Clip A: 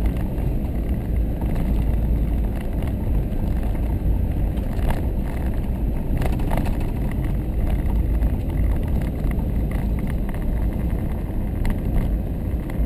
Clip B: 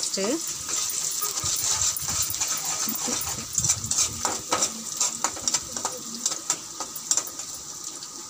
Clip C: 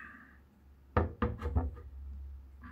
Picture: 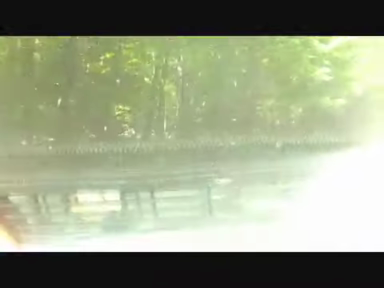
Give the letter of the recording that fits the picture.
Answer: A